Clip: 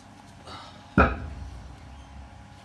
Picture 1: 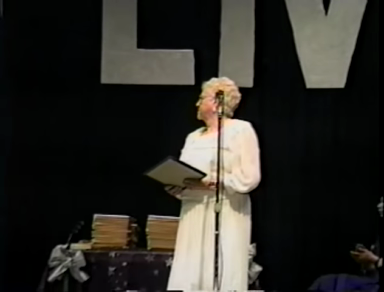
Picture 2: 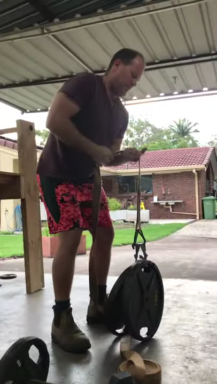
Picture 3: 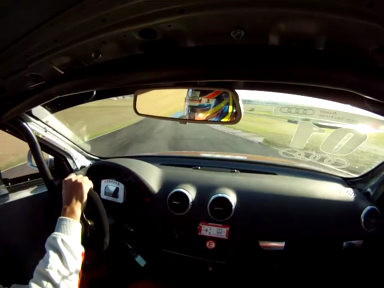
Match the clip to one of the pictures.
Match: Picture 2